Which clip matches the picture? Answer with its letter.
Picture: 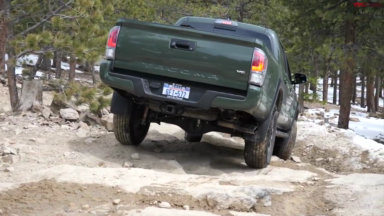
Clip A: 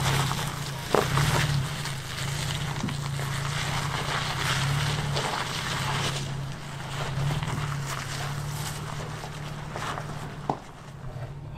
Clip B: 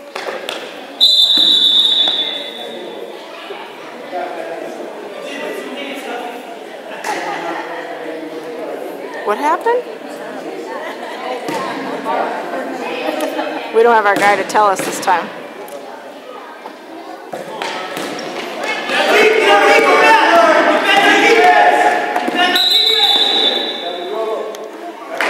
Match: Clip A